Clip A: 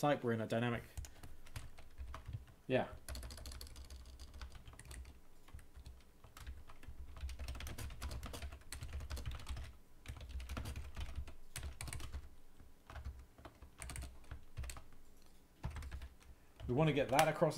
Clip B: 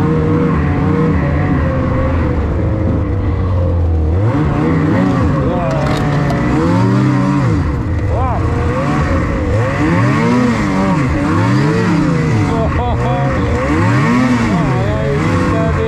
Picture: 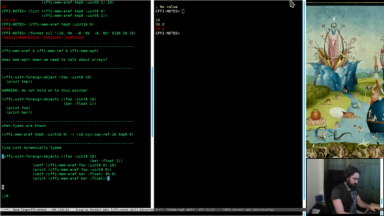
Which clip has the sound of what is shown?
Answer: A